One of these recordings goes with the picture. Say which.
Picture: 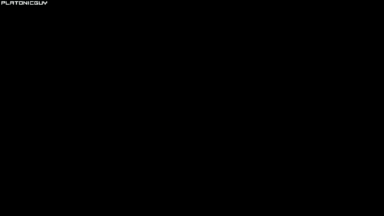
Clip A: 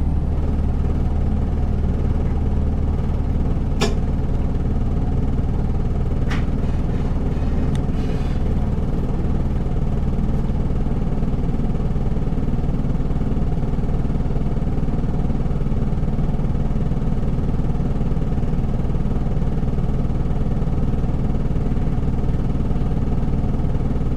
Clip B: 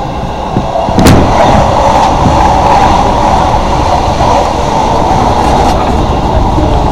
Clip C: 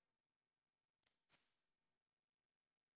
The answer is C